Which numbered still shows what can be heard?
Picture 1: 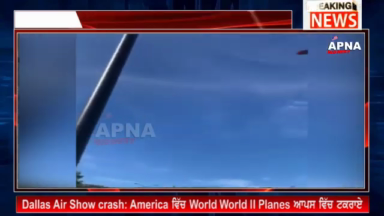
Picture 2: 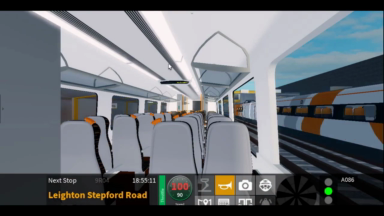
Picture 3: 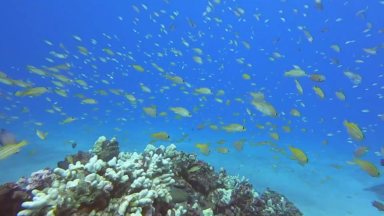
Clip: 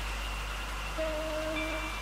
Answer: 2